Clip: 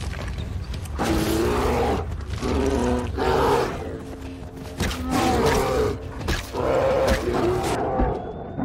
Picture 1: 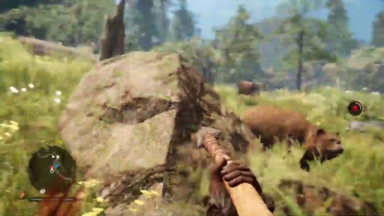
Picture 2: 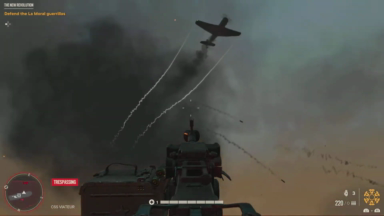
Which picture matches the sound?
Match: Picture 1